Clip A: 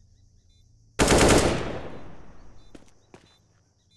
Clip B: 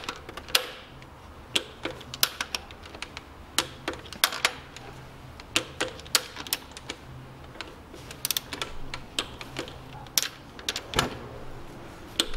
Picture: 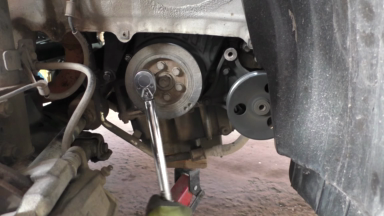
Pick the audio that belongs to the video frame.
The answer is B